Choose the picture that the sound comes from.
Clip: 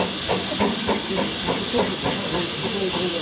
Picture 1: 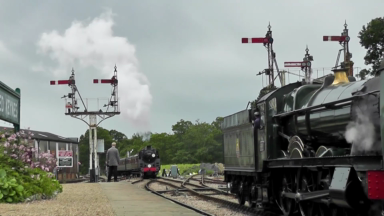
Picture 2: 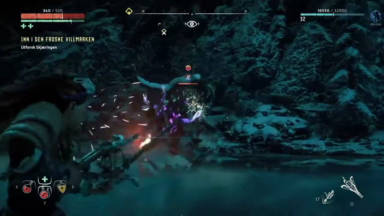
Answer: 1